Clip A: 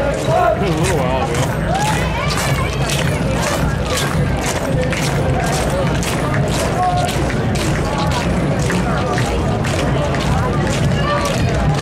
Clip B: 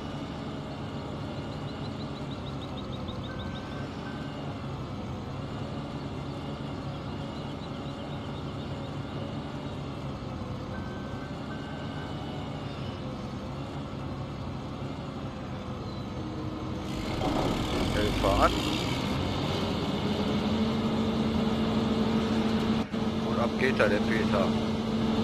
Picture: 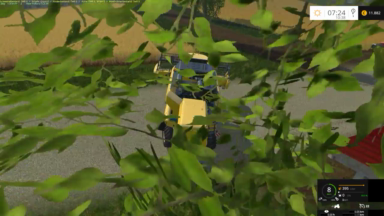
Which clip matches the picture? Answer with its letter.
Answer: B